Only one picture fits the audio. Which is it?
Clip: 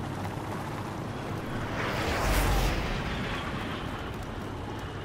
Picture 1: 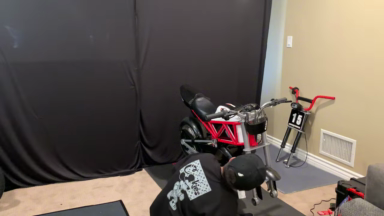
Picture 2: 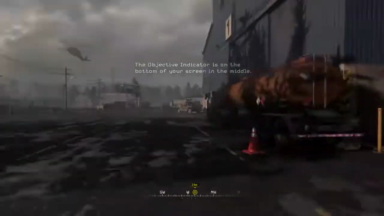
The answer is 2